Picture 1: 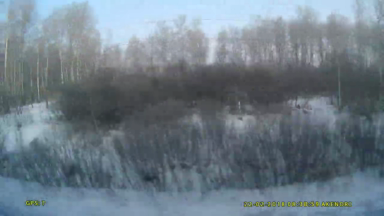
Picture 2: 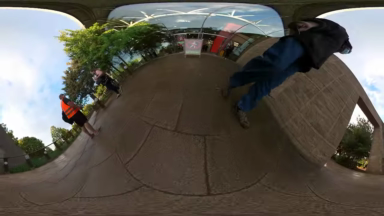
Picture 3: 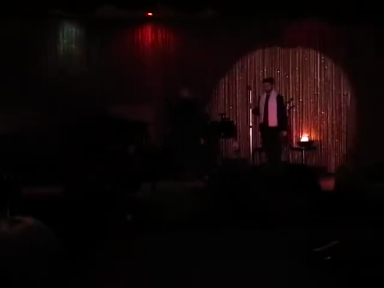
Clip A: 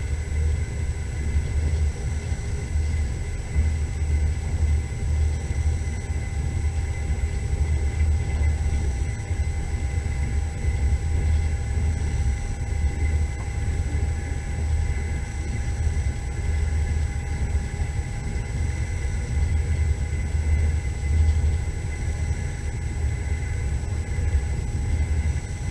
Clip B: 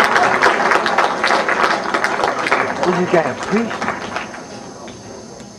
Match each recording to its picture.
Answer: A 1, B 3